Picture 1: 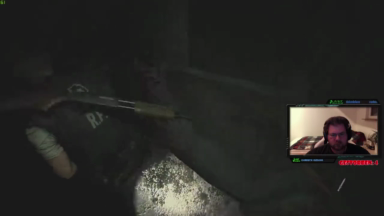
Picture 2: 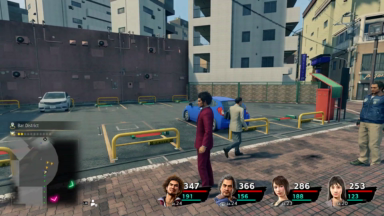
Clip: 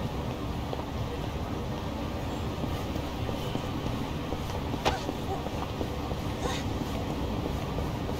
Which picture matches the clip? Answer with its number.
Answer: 2